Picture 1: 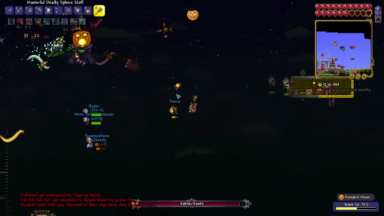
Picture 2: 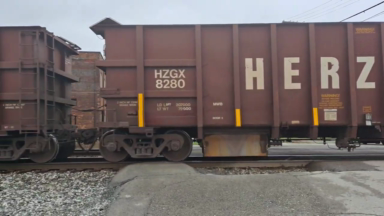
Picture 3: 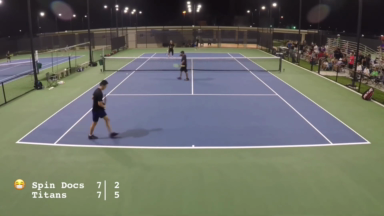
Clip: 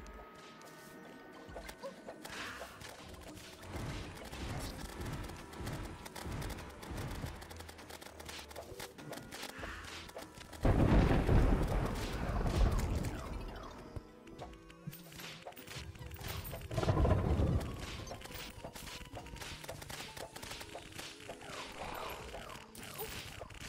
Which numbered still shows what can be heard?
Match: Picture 1